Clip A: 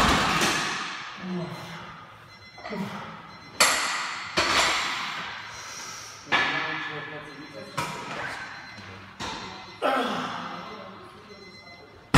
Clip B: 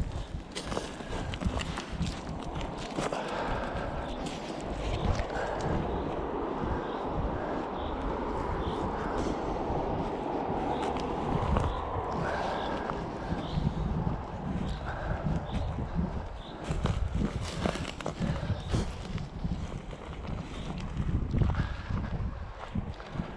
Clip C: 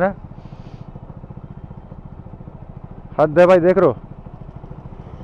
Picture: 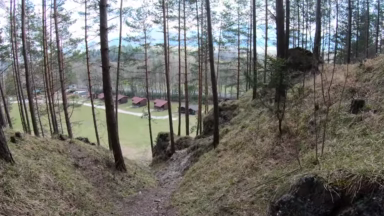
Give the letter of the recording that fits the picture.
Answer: B